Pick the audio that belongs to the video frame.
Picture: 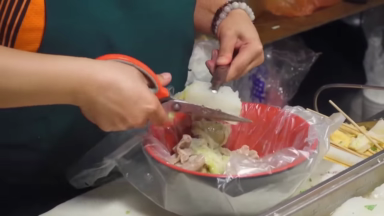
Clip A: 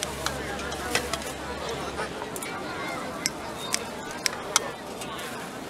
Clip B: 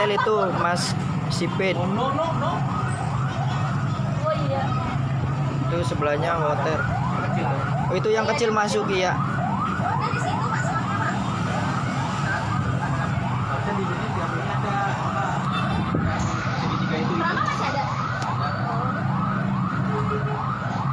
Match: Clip A